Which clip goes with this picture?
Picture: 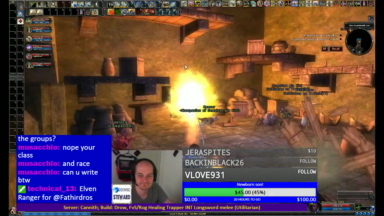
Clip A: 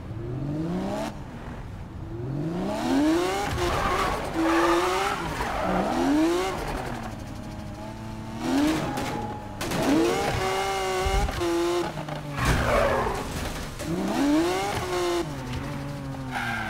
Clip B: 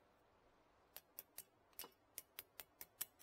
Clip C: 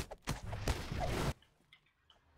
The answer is C